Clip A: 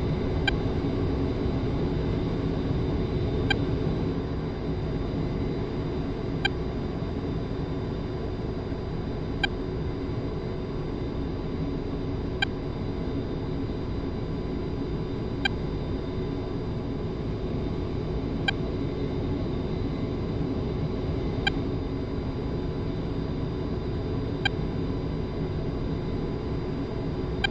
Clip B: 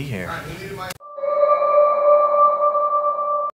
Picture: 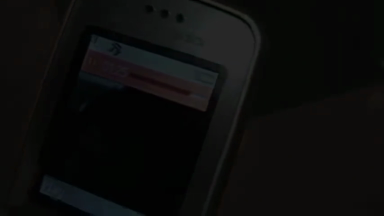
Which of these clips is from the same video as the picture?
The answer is B